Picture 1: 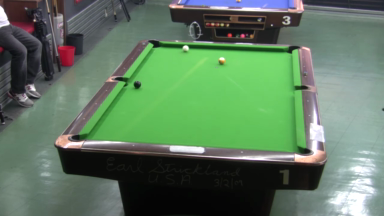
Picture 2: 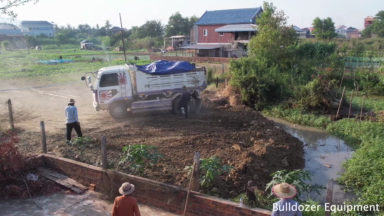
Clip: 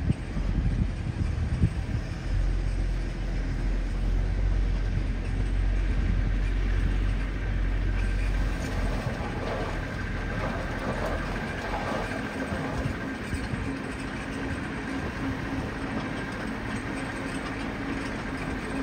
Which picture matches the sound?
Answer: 2